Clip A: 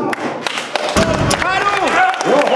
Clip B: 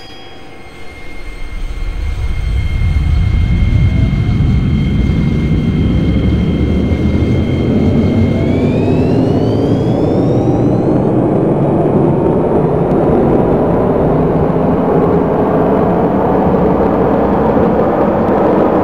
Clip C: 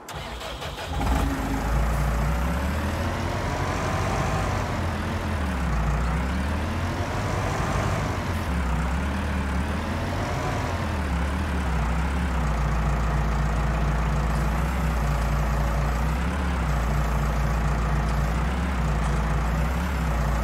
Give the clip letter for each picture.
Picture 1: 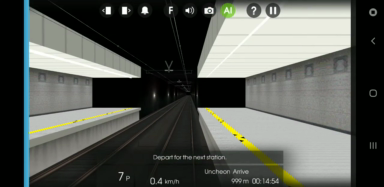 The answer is B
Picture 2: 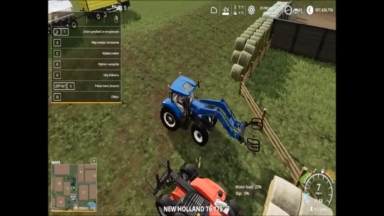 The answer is C